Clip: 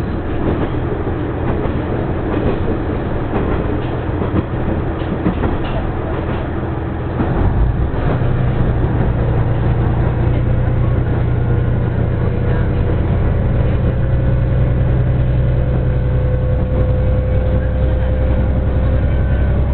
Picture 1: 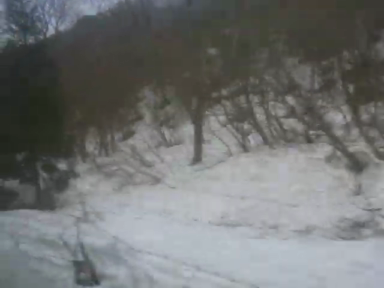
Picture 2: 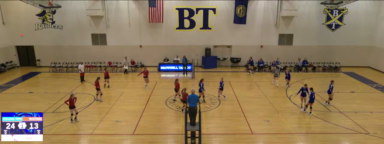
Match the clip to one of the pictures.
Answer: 1